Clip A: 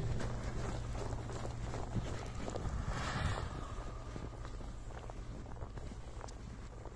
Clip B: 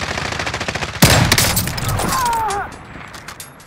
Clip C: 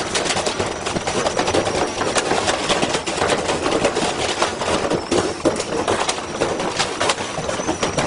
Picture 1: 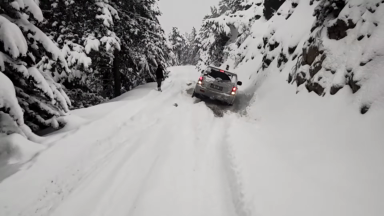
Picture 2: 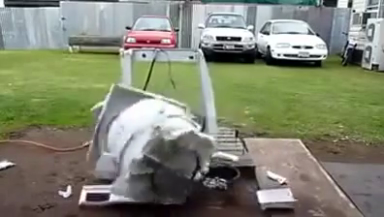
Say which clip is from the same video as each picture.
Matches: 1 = A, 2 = C